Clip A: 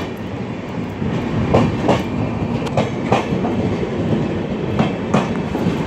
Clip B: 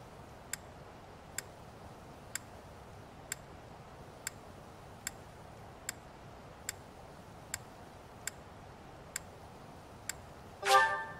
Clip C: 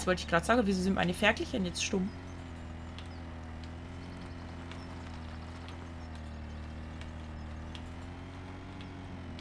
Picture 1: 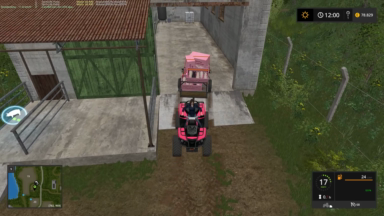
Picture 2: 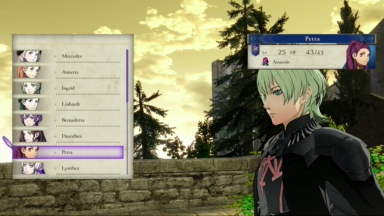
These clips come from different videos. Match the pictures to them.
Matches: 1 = C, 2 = B